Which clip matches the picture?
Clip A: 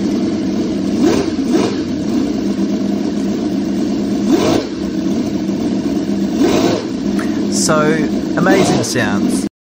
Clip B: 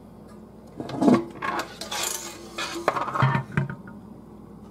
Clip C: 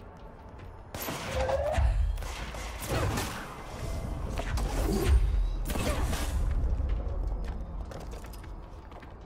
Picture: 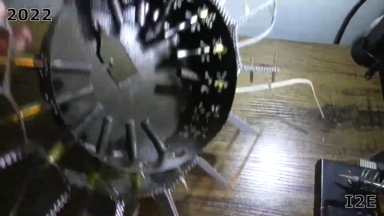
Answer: B